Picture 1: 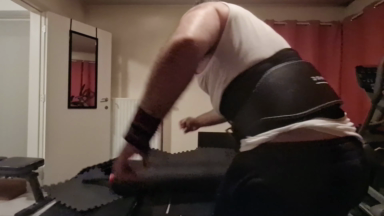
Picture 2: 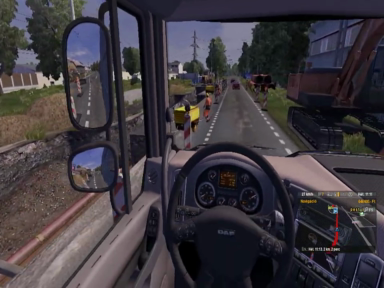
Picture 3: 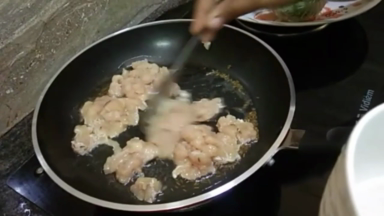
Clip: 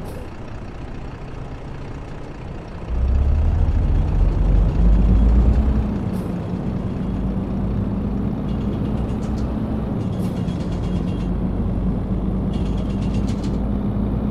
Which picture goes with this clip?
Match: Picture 2